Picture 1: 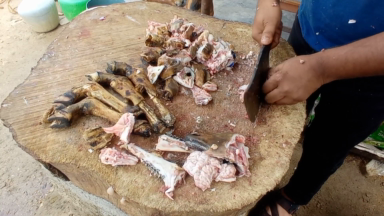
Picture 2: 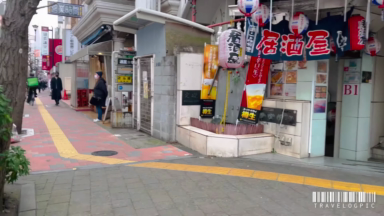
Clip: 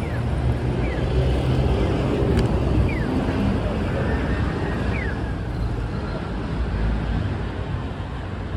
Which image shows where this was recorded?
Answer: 2